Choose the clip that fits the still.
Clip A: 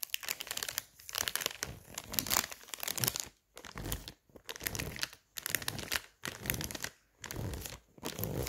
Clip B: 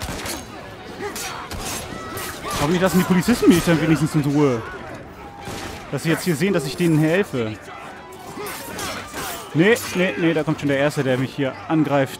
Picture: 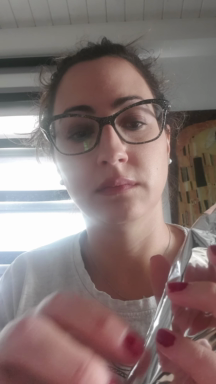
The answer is A